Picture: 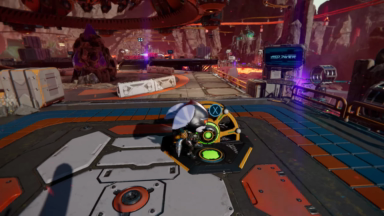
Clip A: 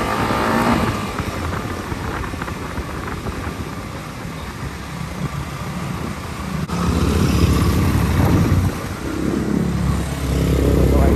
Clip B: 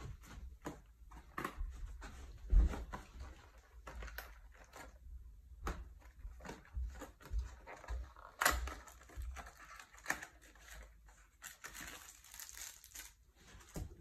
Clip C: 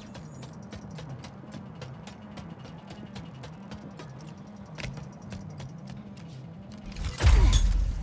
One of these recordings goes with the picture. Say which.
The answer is C